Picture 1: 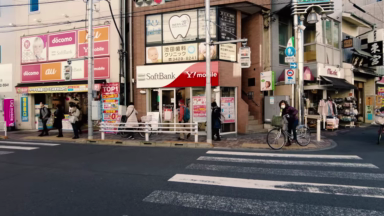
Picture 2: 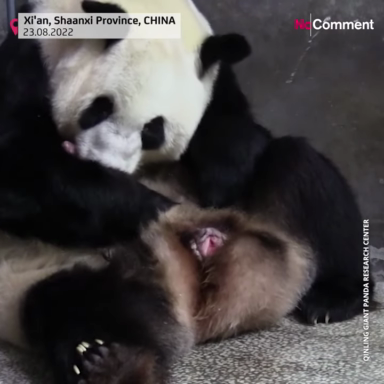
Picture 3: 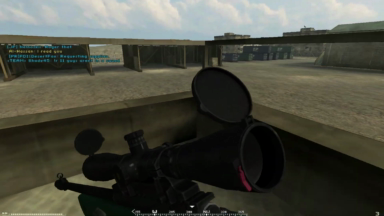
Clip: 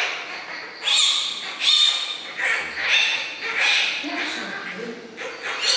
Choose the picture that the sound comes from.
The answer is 2